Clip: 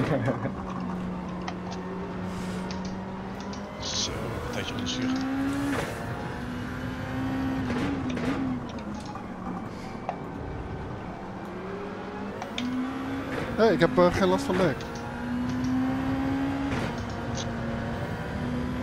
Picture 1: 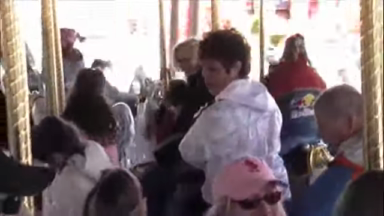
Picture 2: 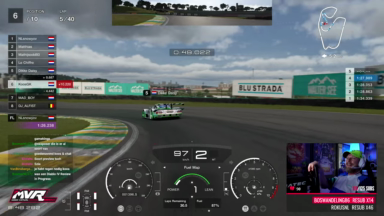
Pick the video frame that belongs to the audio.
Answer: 2